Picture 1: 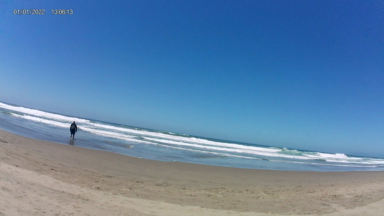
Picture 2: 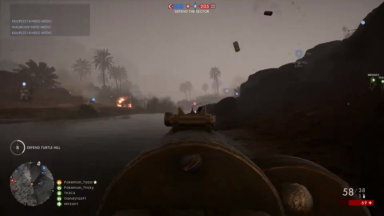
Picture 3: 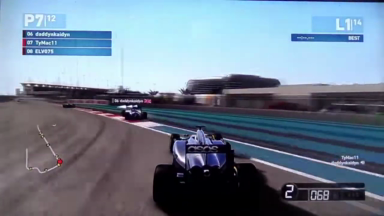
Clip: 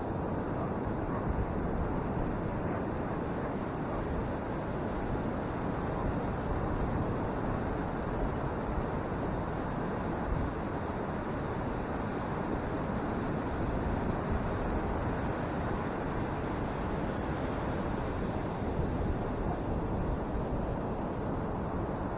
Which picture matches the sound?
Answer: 1